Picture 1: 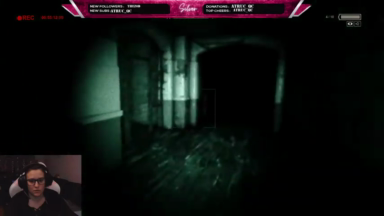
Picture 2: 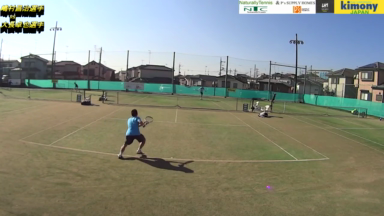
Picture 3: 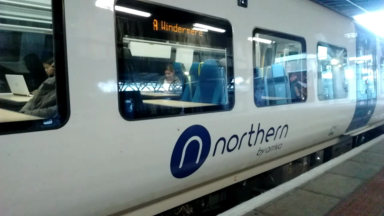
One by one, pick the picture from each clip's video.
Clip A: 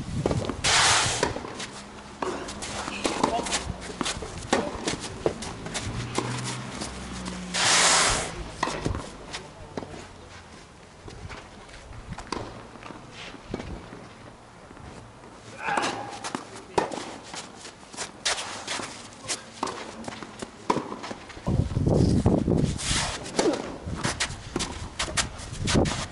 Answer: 2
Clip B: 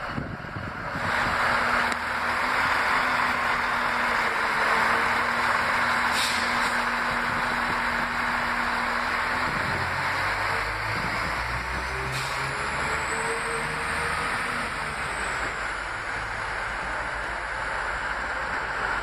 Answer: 3